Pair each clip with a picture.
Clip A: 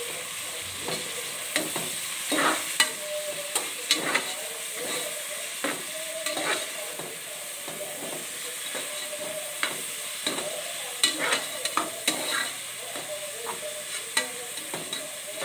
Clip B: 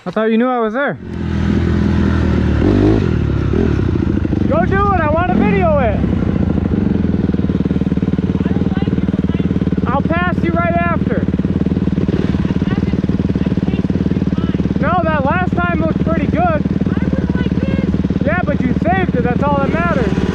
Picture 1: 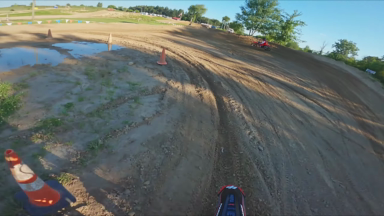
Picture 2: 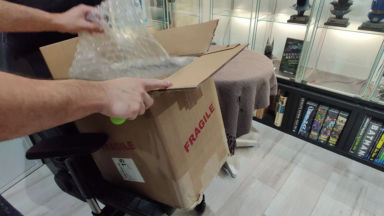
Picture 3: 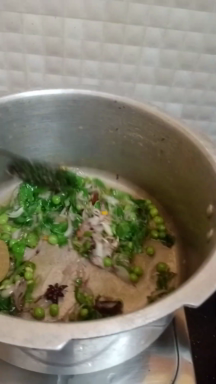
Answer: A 3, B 1